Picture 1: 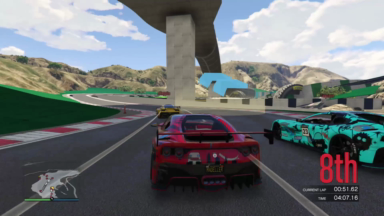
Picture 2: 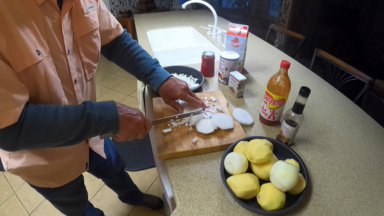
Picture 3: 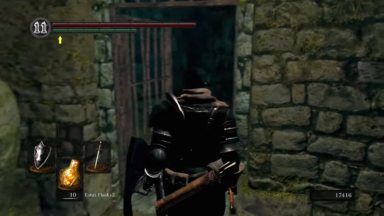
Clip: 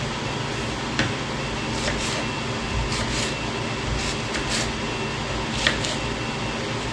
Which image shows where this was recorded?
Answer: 2